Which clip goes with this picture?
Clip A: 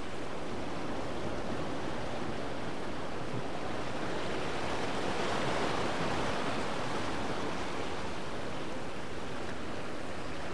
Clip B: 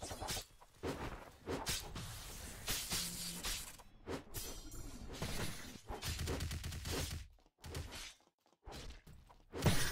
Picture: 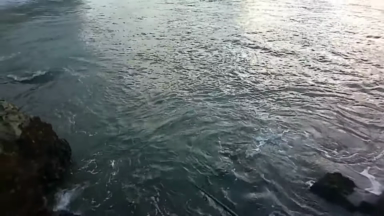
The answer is A